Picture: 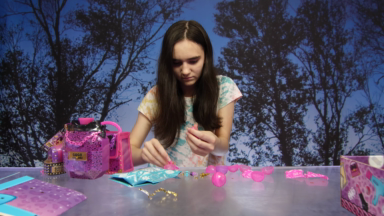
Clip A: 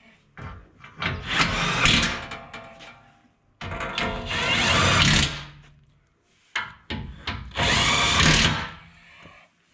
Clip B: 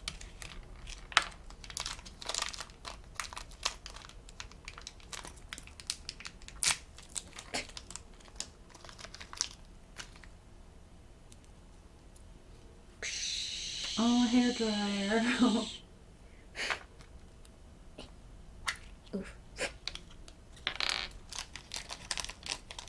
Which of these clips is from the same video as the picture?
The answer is B